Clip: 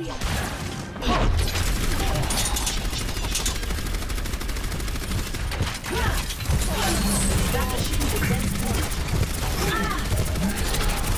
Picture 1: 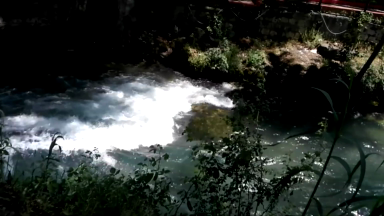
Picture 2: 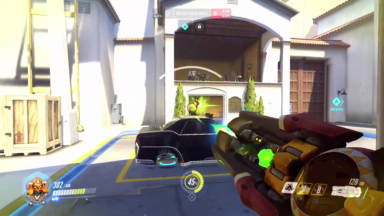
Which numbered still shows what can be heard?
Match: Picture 2